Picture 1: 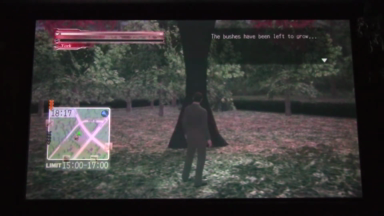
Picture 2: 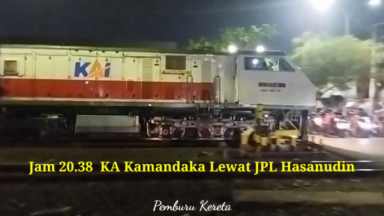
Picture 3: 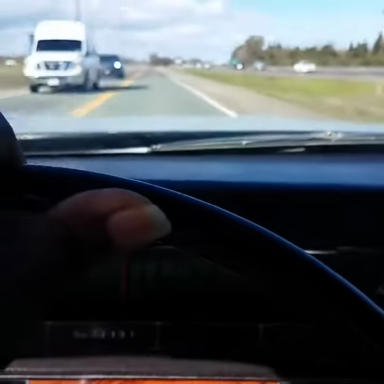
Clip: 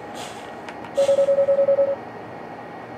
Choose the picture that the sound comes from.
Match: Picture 1